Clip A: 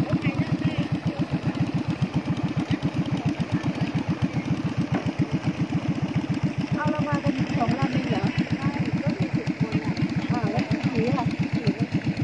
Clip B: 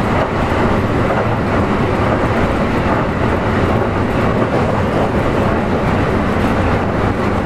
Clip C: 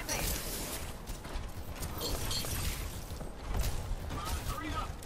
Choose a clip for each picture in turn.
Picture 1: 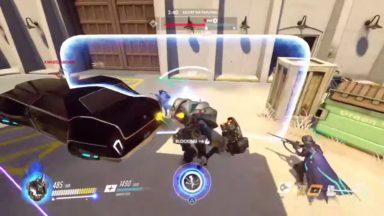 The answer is C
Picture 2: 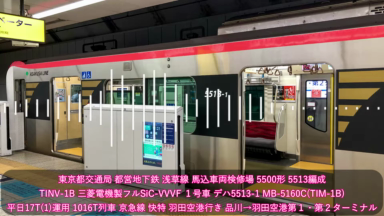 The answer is B